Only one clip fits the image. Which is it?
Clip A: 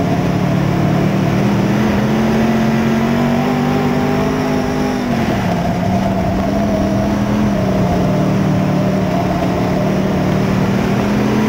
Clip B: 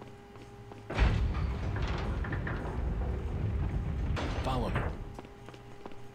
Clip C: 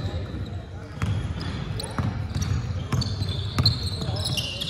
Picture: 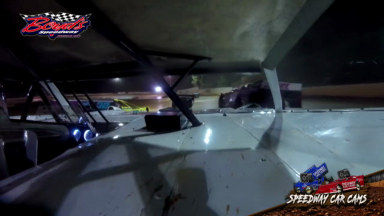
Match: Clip A